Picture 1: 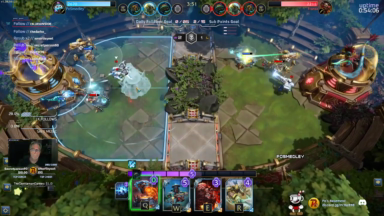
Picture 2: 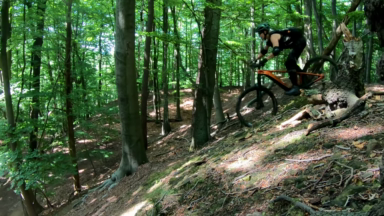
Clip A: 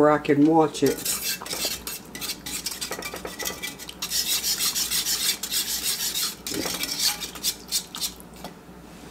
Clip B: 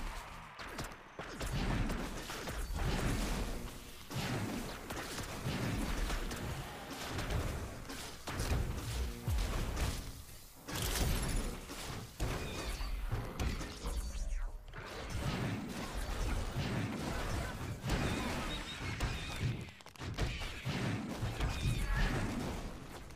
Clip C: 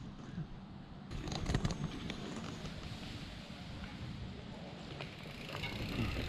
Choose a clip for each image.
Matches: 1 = B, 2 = C